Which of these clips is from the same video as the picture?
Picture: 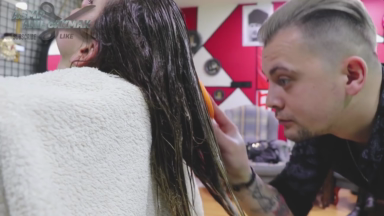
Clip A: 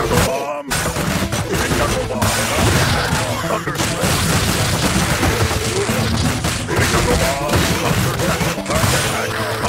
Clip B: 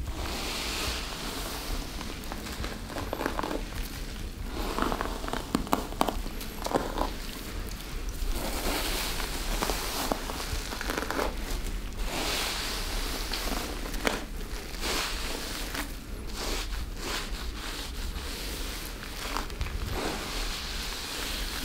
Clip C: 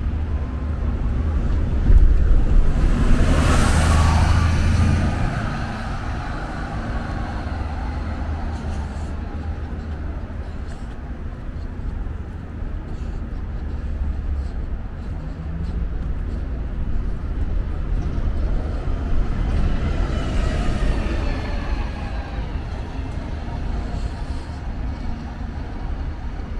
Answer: B